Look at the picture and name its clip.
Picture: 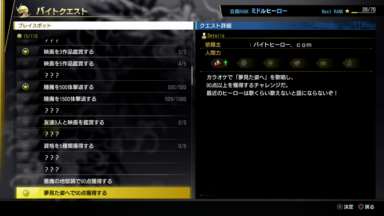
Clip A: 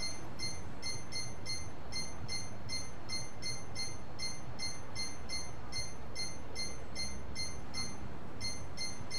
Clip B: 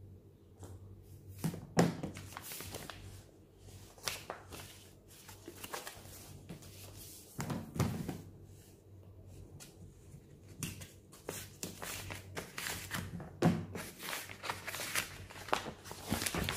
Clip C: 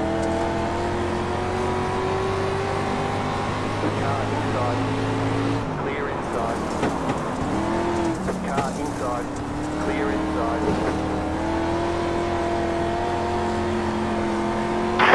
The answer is A